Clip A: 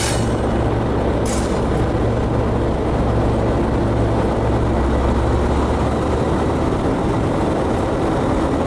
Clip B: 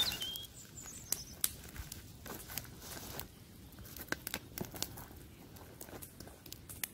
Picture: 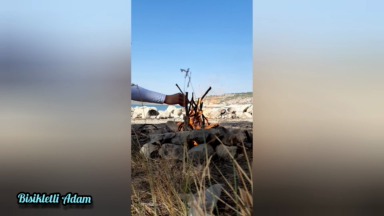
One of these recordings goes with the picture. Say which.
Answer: B